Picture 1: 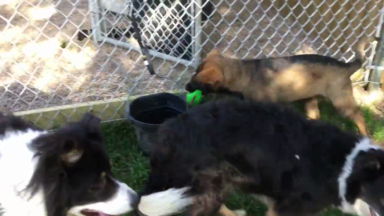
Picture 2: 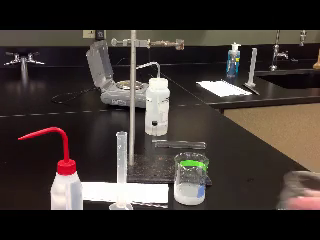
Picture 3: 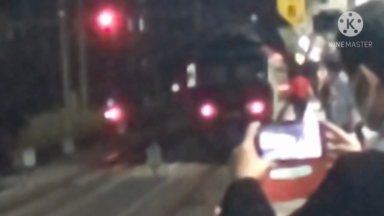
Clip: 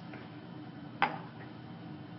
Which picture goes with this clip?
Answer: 2